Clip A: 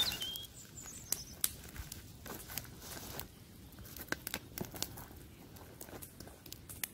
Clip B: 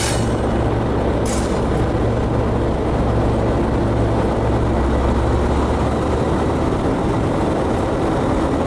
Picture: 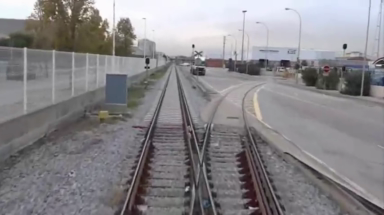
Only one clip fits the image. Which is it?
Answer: B